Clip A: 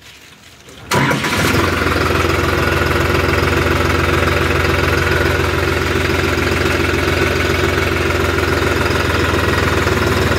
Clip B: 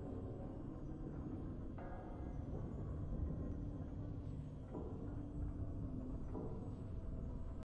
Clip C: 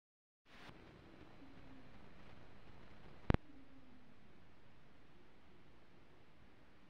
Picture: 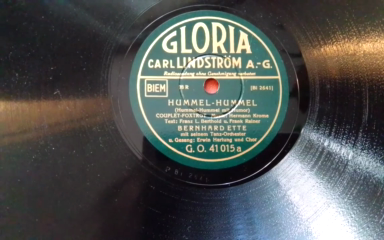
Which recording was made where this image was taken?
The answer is C